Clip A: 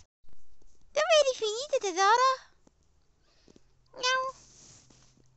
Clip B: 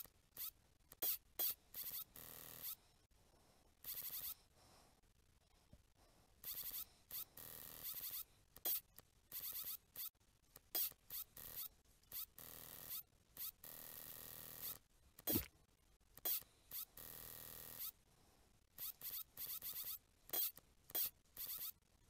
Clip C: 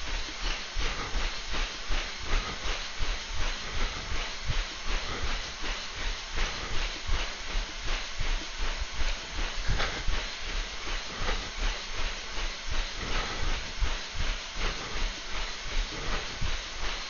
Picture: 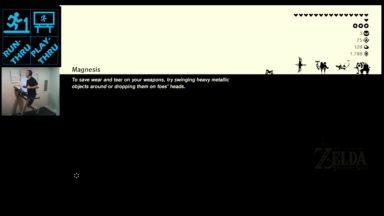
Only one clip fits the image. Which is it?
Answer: C